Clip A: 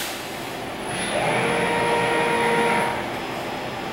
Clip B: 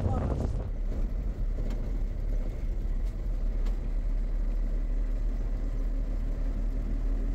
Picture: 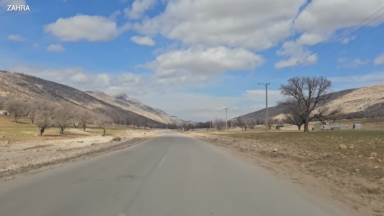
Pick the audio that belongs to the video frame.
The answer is B